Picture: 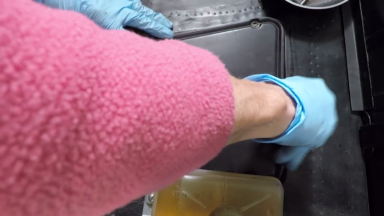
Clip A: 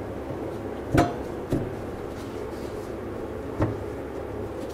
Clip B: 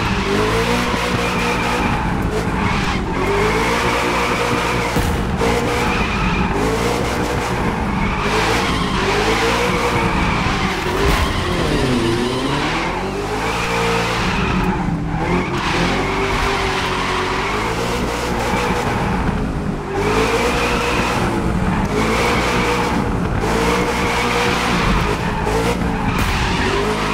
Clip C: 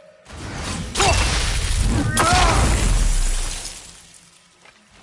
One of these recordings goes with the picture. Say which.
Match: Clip A